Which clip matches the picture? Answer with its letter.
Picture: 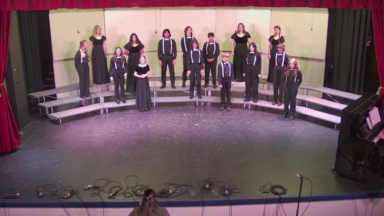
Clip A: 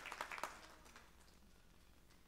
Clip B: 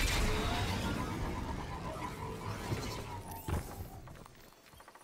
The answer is A